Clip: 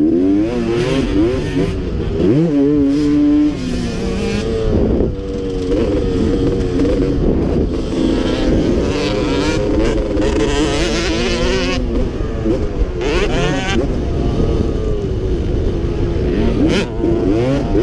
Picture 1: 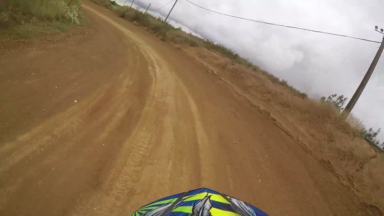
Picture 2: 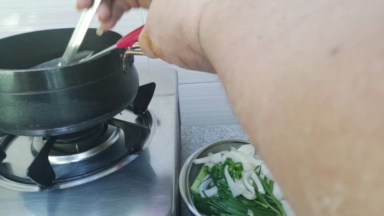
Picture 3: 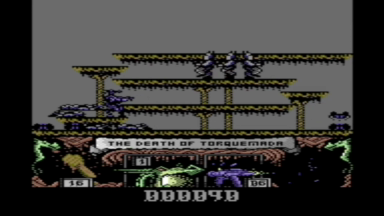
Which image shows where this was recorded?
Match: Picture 1